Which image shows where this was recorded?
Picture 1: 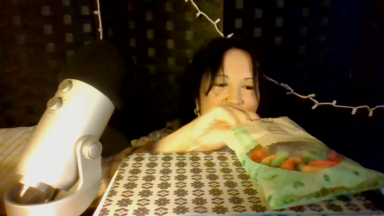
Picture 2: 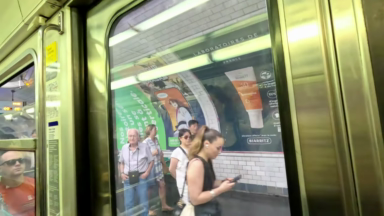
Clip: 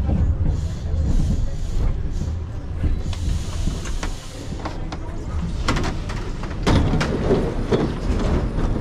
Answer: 2